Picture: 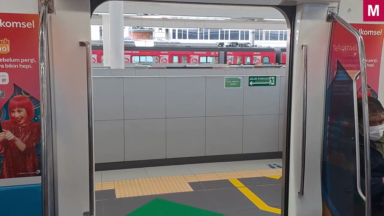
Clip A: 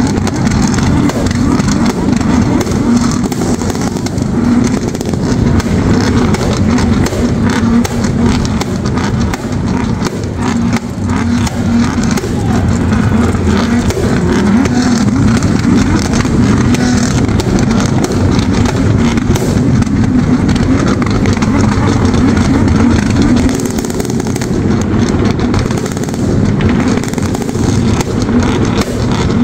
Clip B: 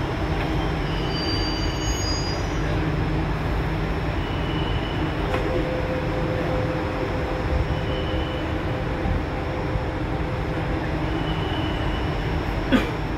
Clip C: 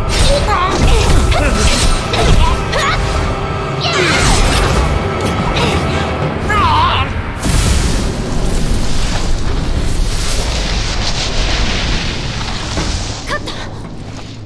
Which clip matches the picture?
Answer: B